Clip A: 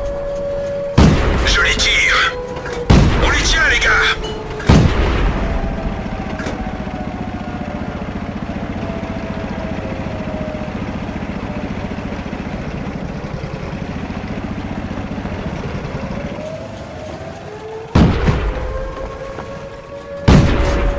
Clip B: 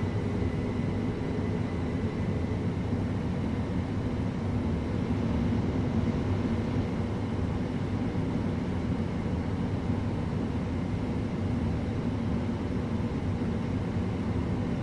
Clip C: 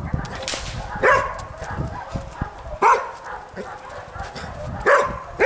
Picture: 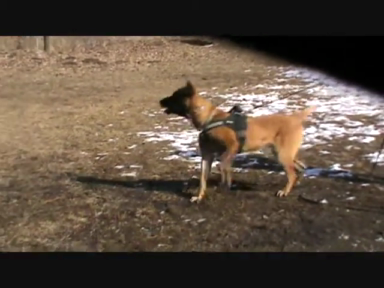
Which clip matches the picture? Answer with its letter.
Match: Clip C